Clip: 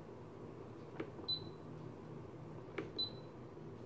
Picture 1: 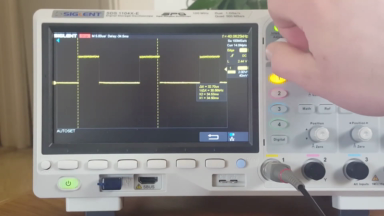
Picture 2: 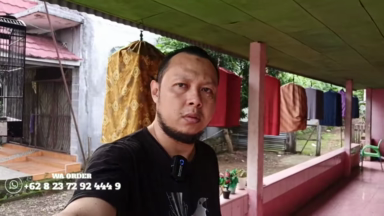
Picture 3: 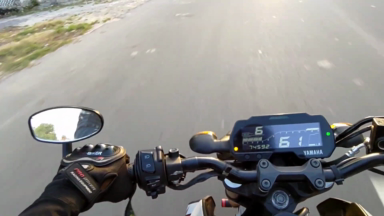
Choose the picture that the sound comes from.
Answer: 1